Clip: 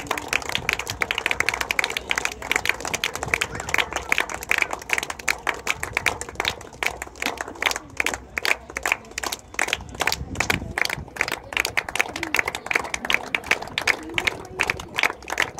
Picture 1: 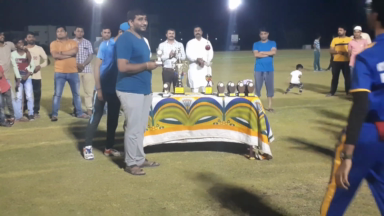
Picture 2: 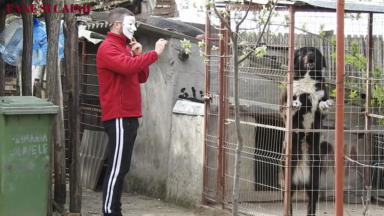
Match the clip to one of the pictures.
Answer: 1